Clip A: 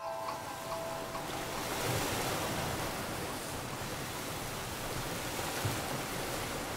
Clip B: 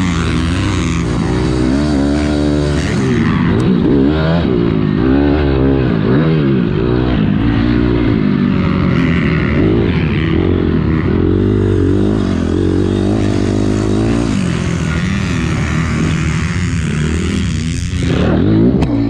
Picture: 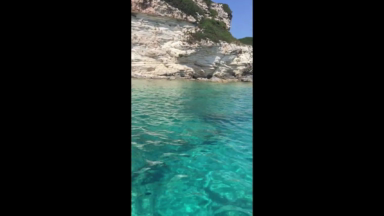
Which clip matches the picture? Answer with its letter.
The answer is A